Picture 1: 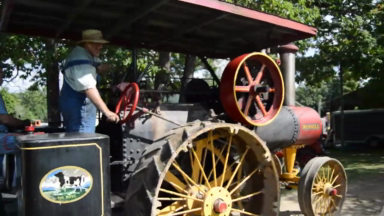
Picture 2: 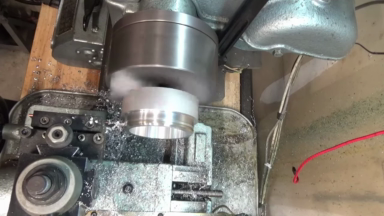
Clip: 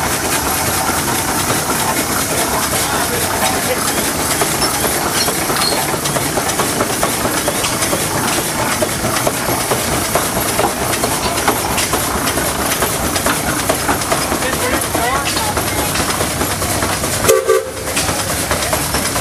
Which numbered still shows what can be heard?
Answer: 1